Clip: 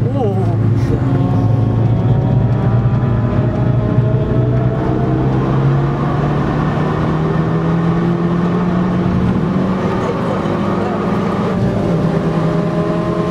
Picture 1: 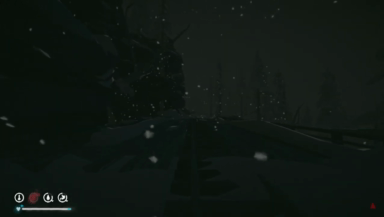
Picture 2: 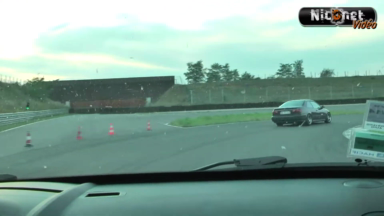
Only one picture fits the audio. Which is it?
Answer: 2